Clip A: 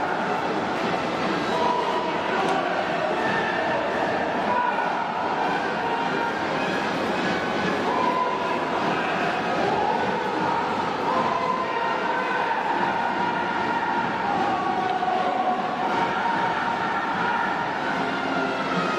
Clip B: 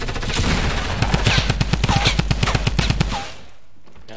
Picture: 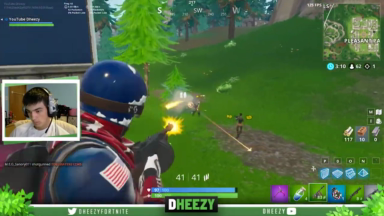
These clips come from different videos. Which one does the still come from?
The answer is B